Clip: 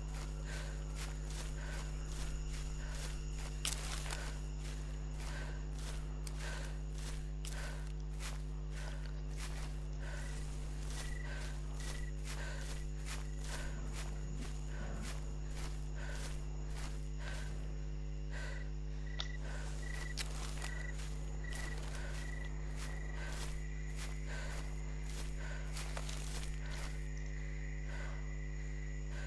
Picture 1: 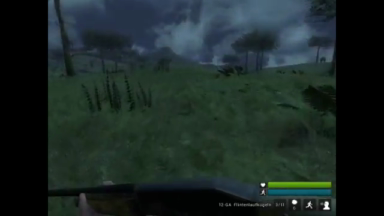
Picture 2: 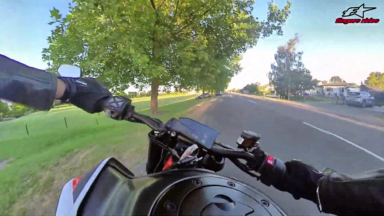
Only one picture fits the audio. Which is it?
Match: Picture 1